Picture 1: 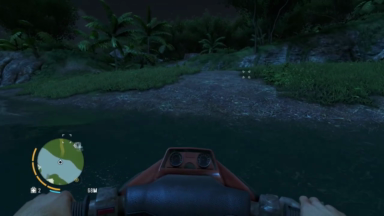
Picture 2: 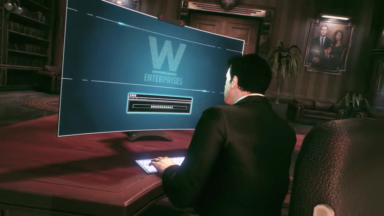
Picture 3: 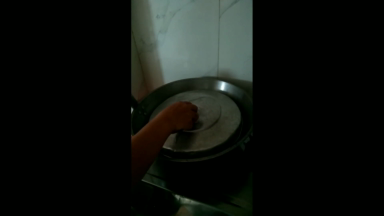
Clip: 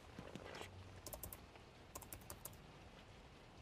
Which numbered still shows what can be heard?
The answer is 2